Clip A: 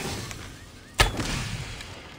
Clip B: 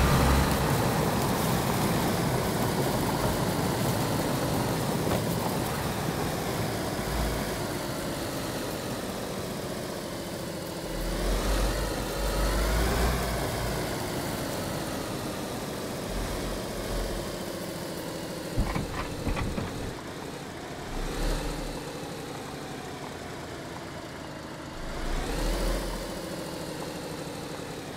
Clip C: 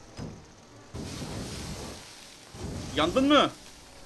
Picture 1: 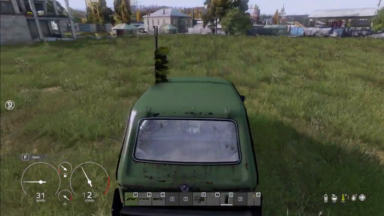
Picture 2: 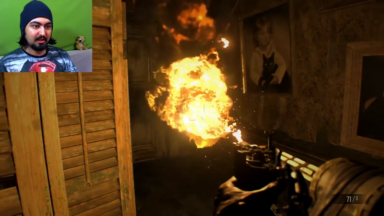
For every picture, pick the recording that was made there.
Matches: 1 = B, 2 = C